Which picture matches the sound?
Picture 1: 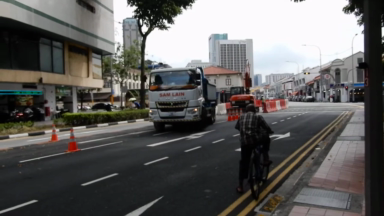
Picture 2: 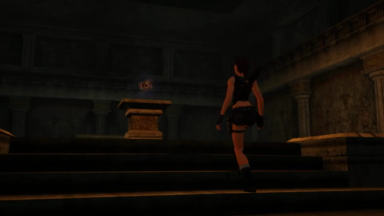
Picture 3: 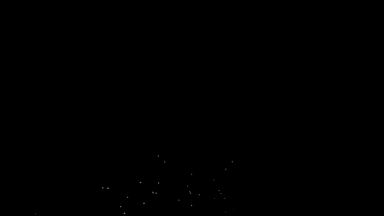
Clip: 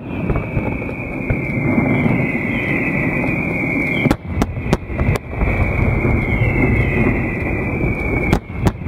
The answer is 3